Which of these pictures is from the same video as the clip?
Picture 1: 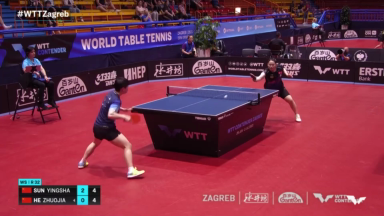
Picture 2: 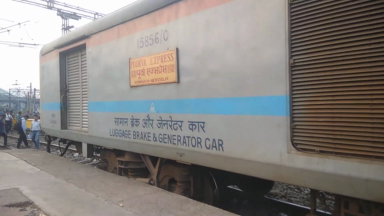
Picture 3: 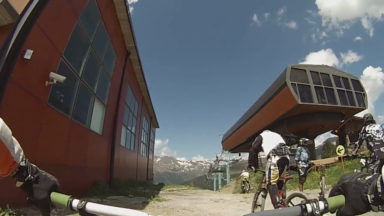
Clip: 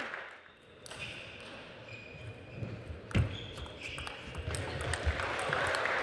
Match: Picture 1